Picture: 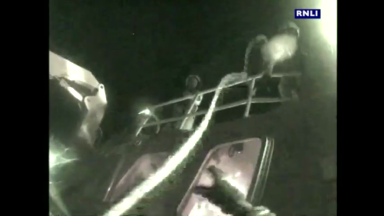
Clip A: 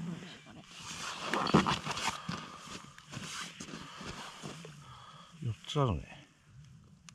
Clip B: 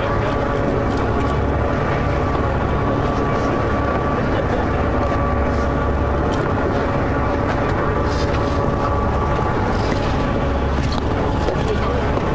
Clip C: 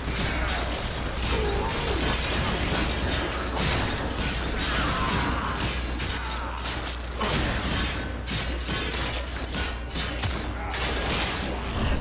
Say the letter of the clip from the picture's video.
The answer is B